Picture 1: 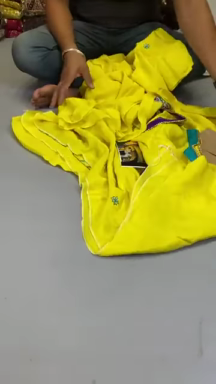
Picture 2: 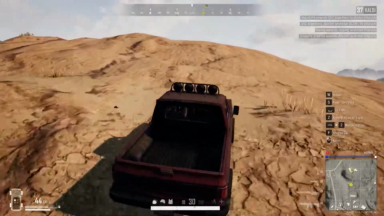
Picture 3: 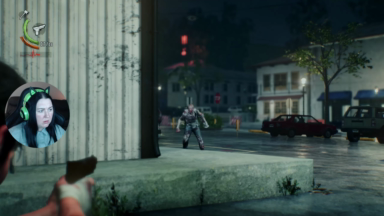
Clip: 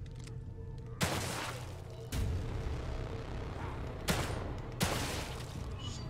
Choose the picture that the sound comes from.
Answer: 3